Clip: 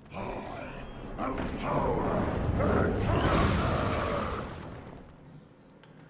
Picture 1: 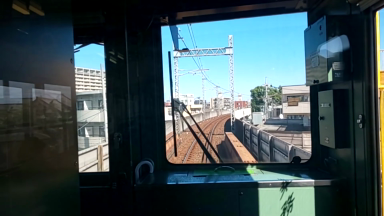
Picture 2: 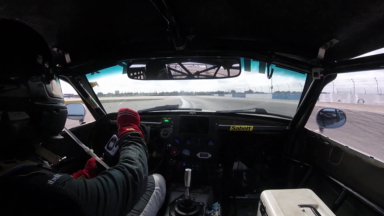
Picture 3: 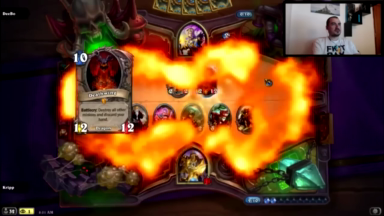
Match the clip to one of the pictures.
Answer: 3